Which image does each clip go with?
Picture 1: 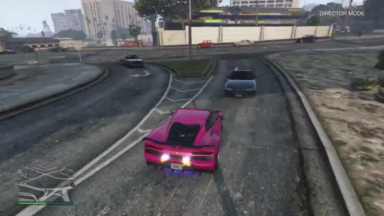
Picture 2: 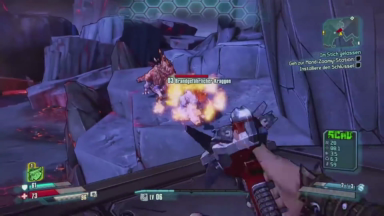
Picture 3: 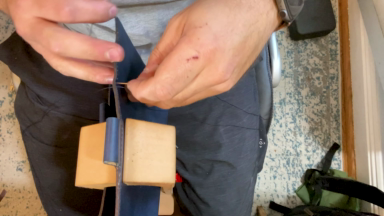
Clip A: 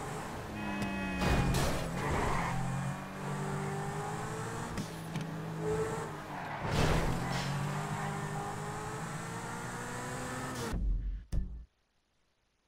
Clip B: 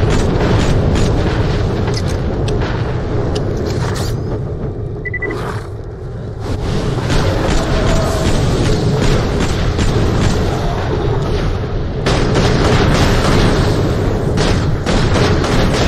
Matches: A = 1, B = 2